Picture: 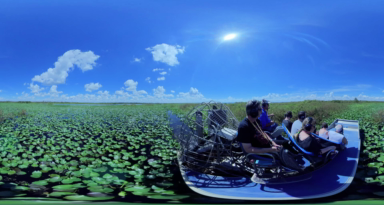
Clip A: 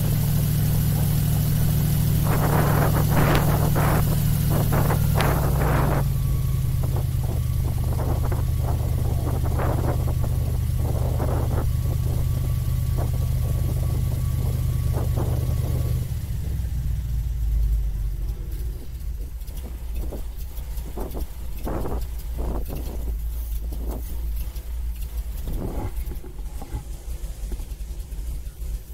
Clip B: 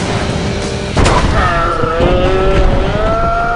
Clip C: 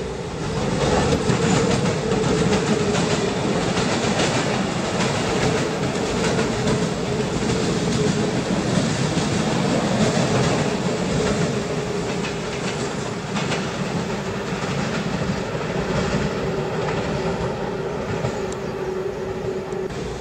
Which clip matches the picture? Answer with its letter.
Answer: A